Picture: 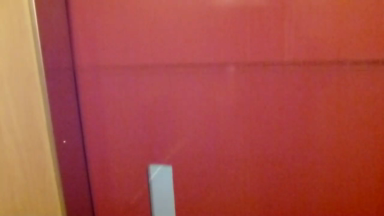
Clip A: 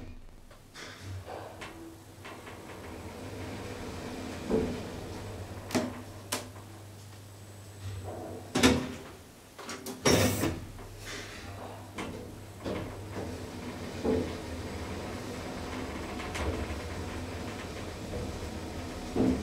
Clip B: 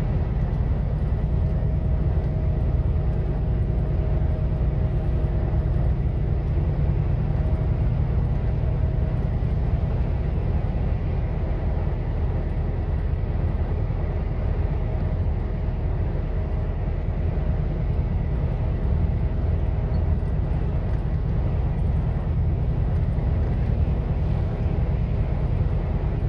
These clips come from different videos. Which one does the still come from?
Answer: A